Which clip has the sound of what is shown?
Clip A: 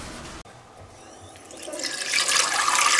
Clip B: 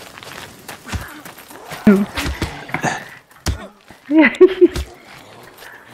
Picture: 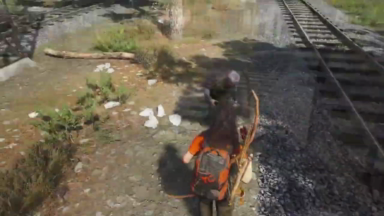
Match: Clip B